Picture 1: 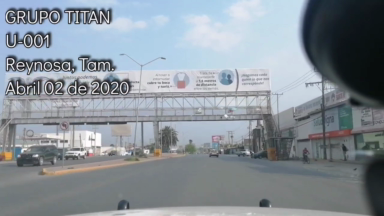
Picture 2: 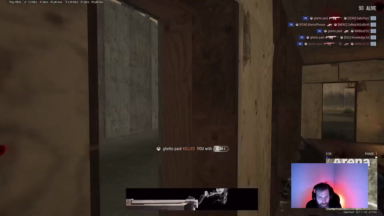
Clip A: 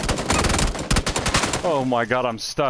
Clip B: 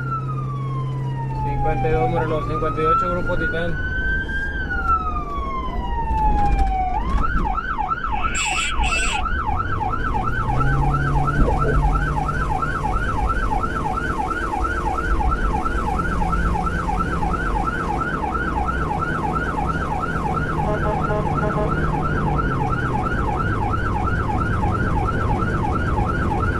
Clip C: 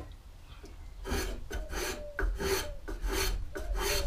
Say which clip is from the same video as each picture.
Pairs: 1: B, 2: A